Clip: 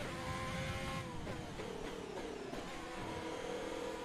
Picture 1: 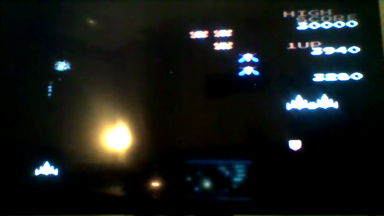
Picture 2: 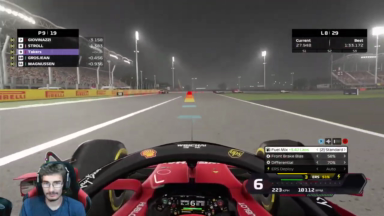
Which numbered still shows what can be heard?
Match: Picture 2